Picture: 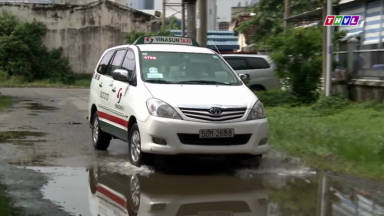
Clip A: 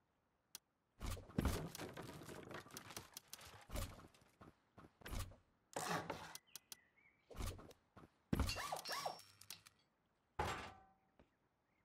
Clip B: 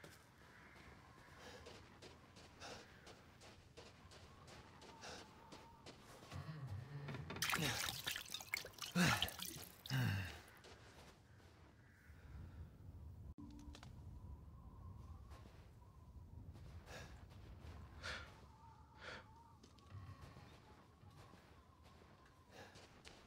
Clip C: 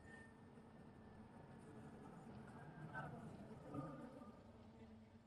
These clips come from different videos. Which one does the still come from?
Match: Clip C